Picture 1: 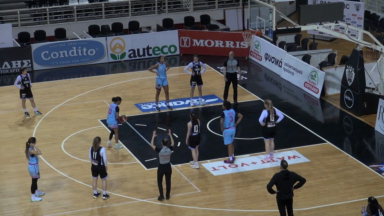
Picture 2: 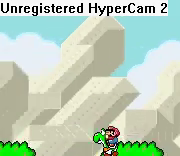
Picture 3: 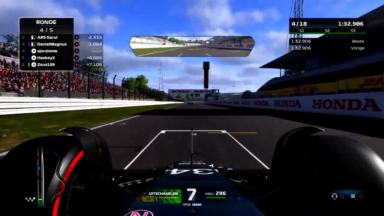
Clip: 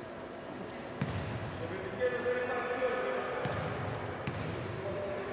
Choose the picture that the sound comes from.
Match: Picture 1